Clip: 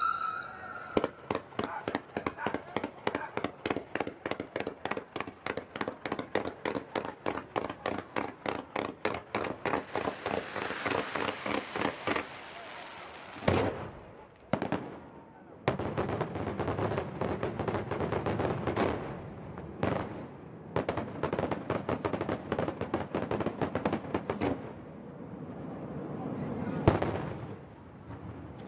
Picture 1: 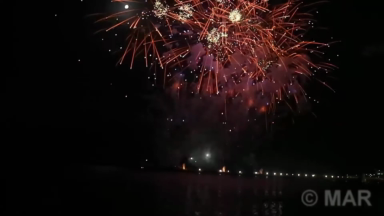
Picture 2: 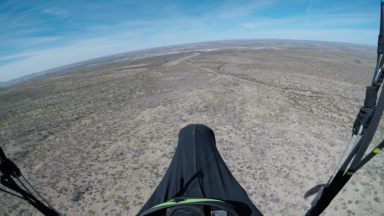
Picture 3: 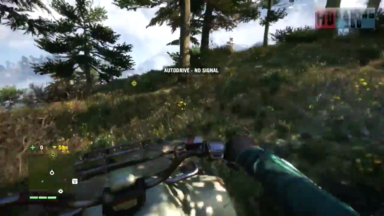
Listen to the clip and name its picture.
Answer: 1